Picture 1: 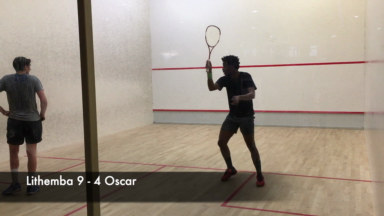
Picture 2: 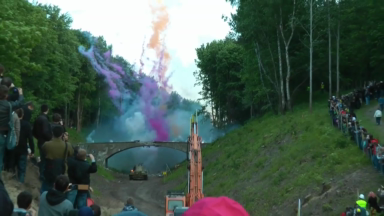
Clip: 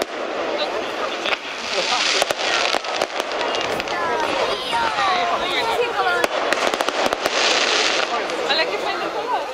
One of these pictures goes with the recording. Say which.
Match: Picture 2